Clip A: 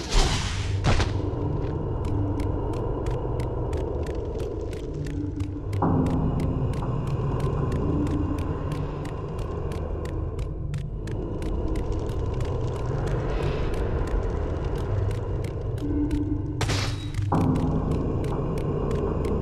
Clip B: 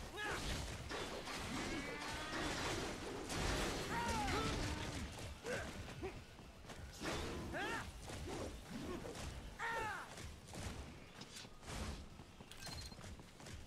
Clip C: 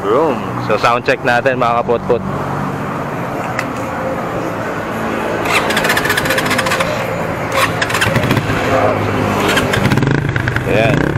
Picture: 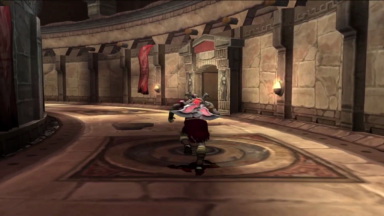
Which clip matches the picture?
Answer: A